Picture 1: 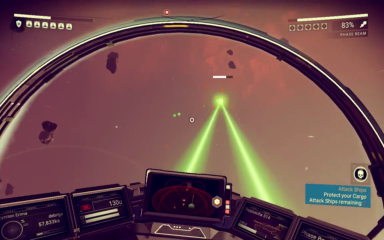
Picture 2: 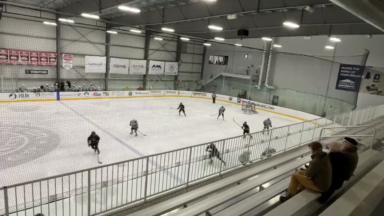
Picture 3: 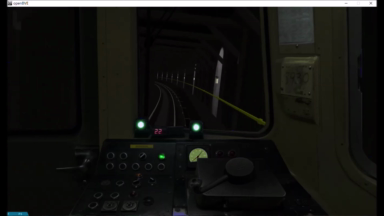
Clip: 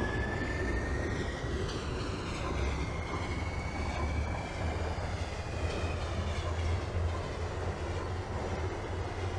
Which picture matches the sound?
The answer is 3